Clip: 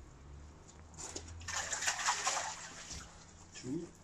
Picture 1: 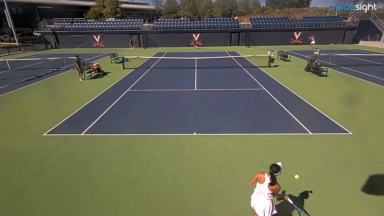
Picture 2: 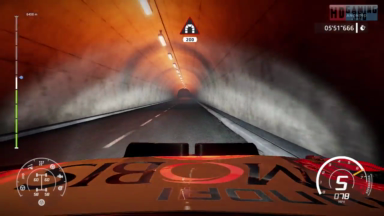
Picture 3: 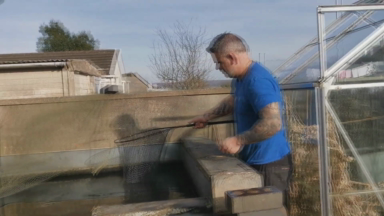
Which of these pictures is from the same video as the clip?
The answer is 3